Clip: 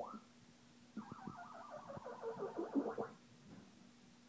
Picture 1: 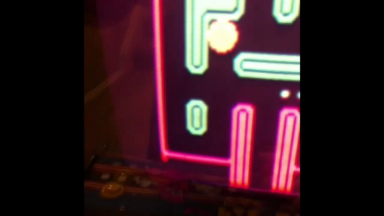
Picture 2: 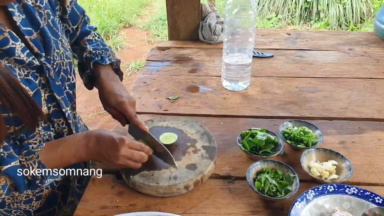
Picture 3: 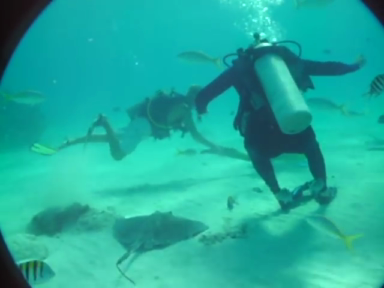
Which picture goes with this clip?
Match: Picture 1